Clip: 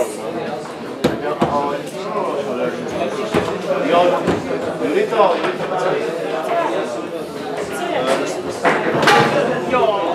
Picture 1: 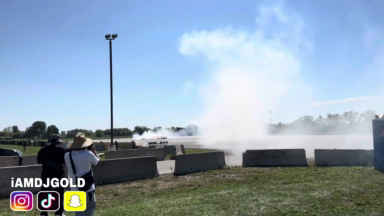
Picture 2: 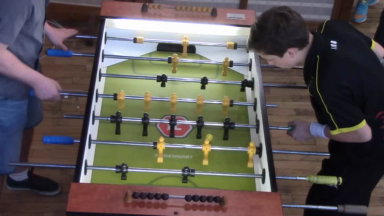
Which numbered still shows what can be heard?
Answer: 2